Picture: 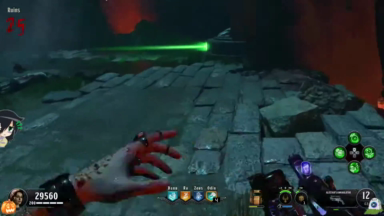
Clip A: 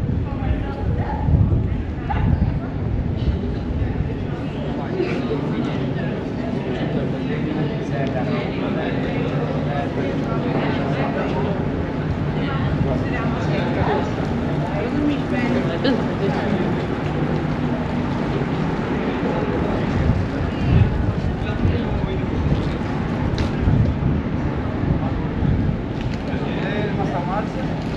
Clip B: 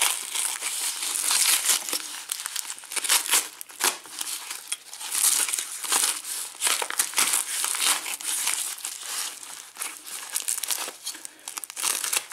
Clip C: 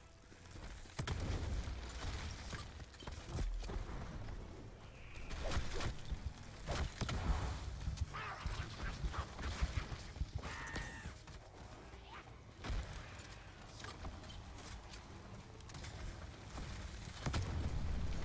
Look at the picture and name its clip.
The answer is C